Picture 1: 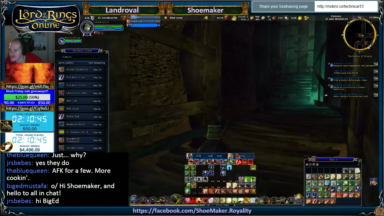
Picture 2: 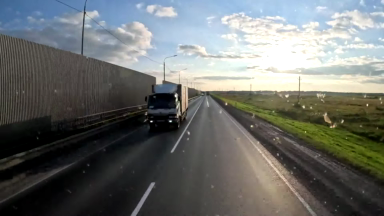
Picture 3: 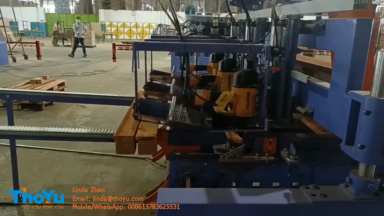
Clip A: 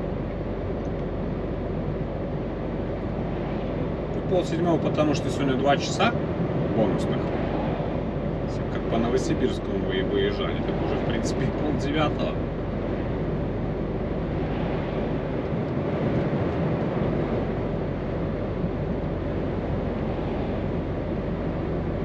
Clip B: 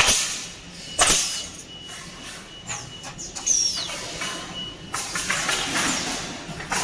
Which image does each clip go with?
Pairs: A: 2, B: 3